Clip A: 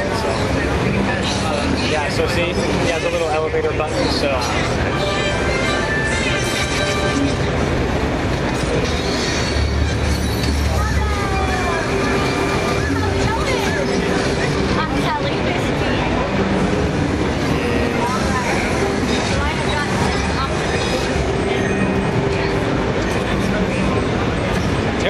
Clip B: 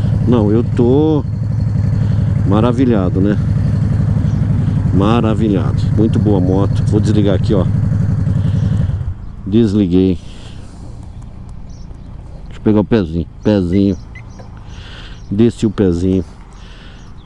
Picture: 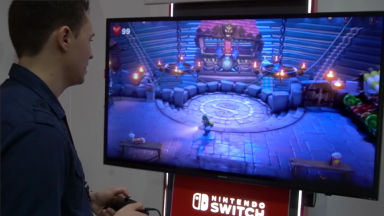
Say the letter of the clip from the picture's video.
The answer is A